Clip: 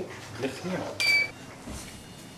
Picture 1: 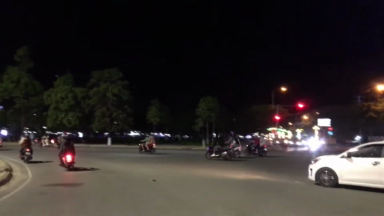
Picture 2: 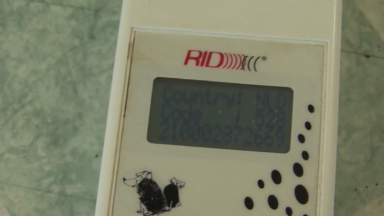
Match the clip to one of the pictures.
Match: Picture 2